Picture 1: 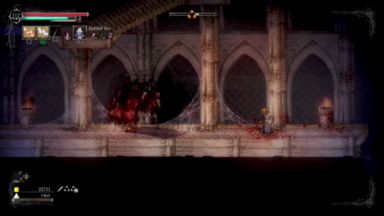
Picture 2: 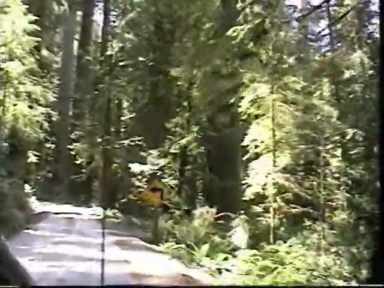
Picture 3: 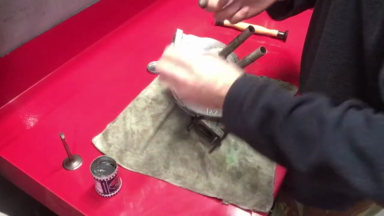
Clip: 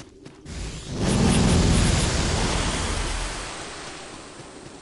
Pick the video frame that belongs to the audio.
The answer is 1